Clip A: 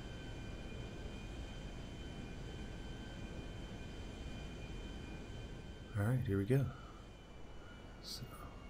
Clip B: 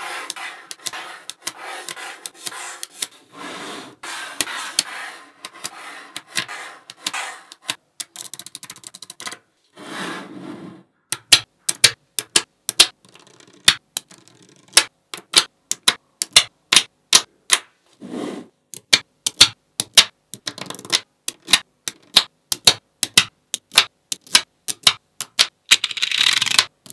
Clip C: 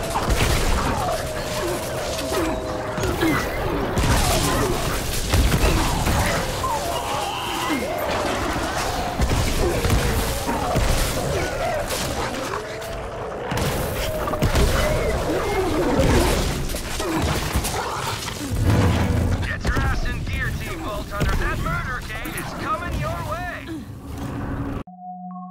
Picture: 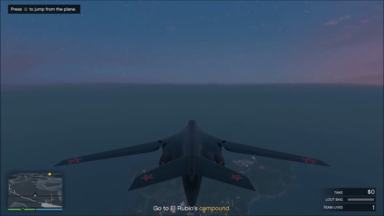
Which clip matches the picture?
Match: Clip A